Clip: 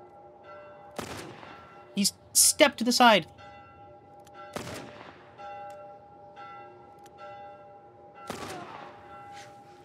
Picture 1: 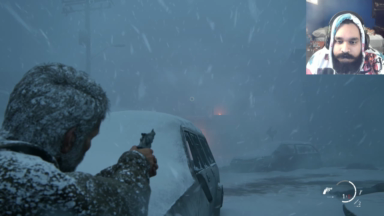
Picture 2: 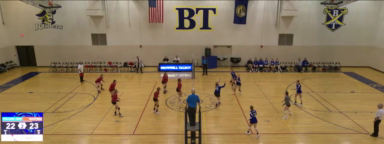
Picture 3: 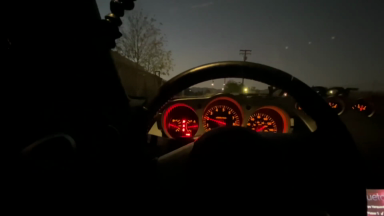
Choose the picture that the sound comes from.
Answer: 1